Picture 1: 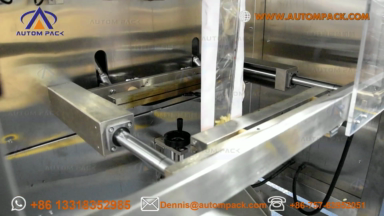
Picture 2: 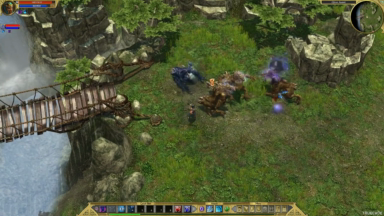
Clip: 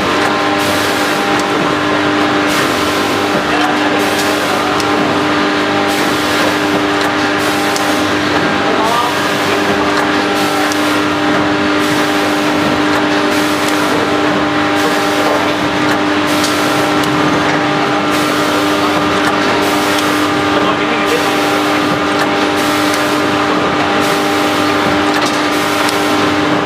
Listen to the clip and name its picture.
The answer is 1